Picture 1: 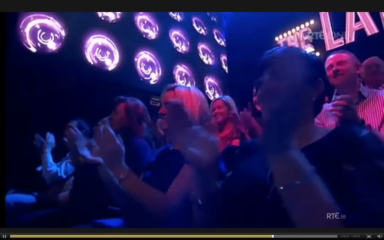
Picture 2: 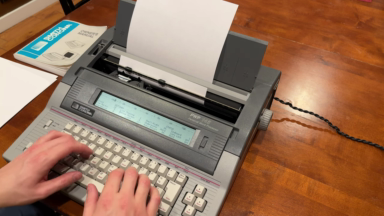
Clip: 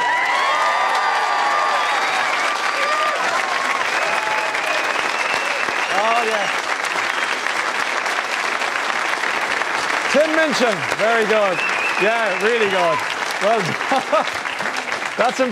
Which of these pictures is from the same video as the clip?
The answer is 1